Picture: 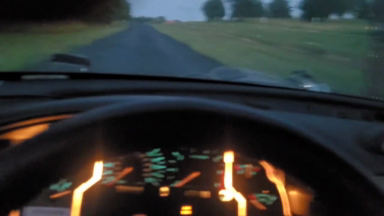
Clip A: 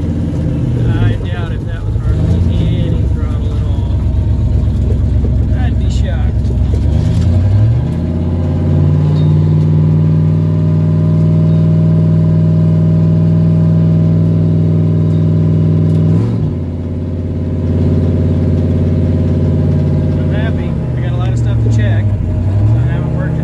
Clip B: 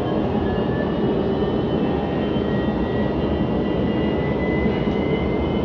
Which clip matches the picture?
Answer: A